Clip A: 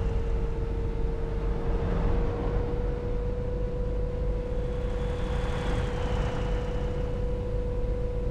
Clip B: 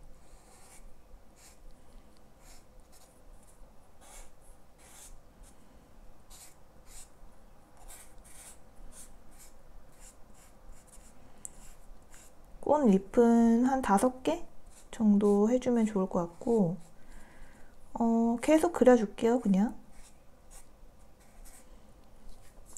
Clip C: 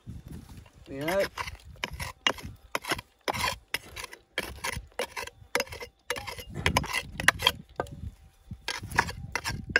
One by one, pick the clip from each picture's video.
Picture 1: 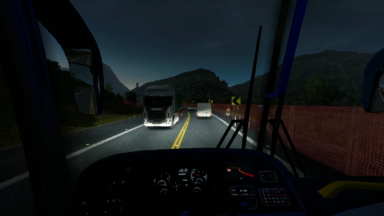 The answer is A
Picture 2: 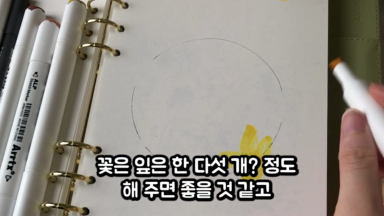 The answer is B